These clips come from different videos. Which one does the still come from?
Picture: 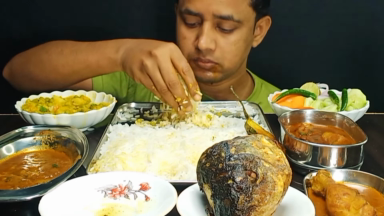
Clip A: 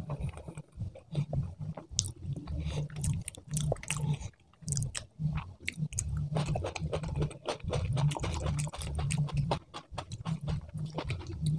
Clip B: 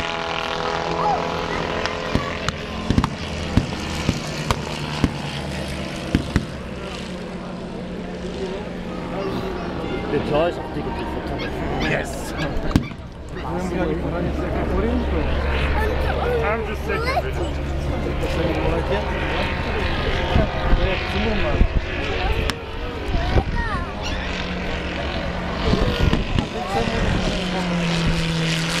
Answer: A